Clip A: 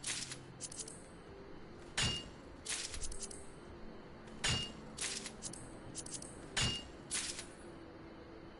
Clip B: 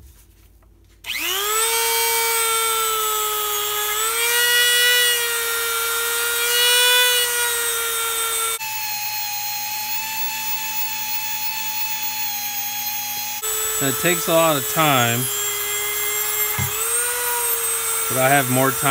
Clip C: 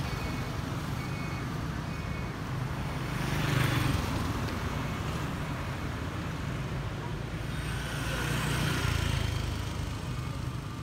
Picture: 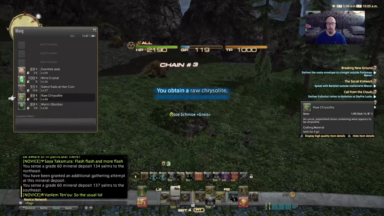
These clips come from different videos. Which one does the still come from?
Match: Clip A